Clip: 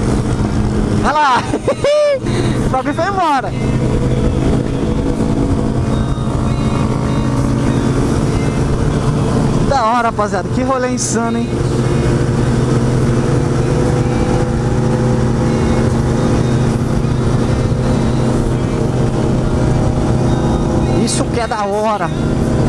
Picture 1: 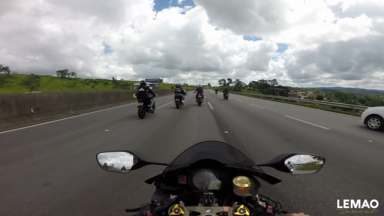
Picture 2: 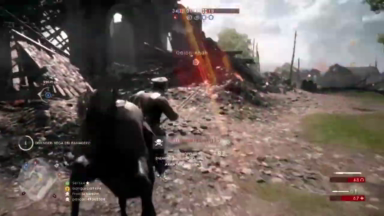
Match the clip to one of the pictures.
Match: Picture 1